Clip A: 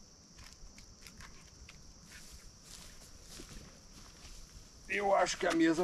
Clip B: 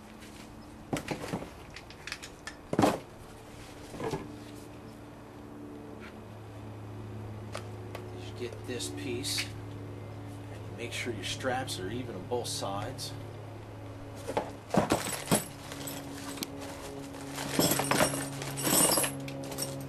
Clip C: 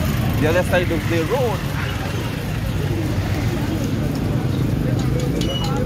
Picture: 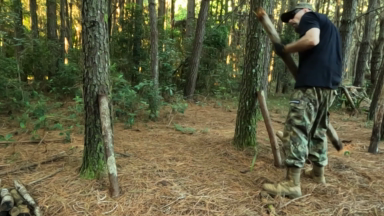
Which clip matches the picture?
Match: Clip A